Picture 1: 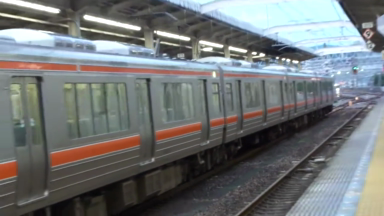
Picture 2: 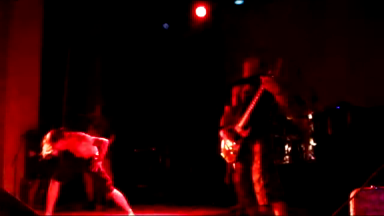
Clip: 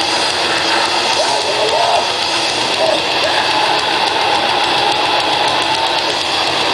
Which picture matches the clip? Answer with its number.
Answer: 2